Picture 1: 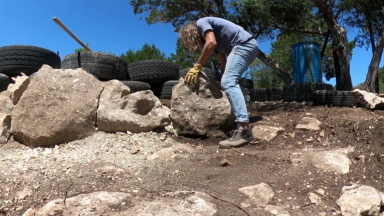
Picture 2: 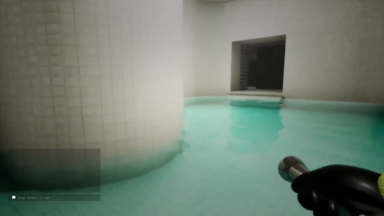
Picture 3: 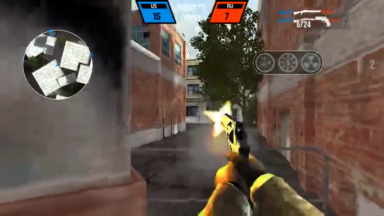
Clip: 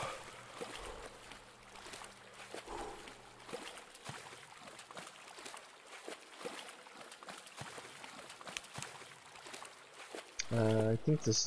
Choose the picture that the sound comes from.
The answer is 2